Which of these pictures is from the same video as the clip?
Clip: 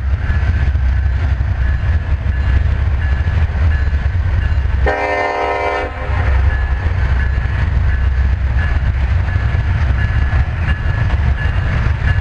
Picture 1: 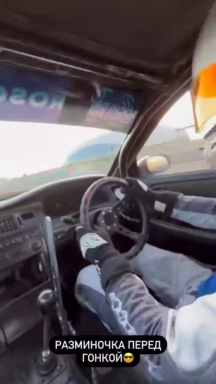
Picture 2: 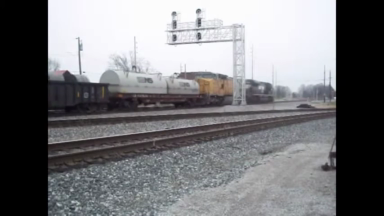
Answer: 2